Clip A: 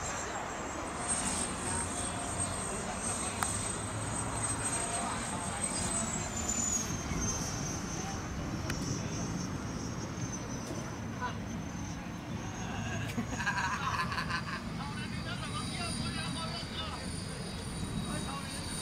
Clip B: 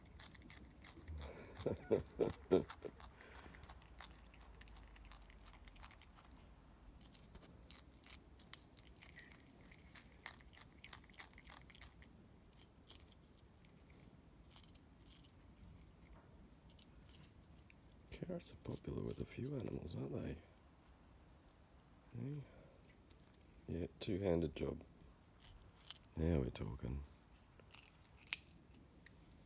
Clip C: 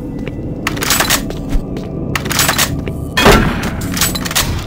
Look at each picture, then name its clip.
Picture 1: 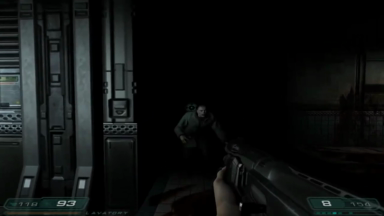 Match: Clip C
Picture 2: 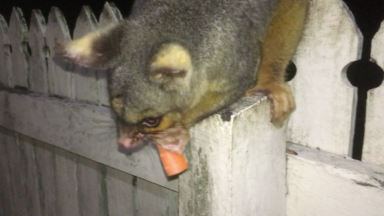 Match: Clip B